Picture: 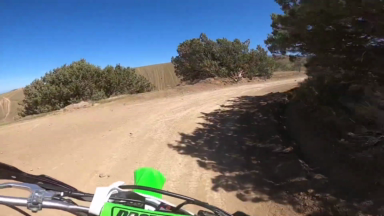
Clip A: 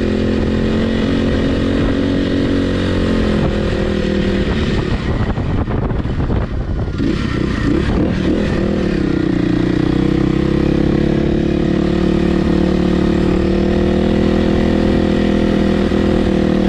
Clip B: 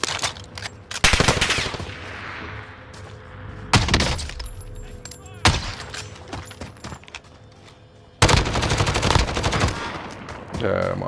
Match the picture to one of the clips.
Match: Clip A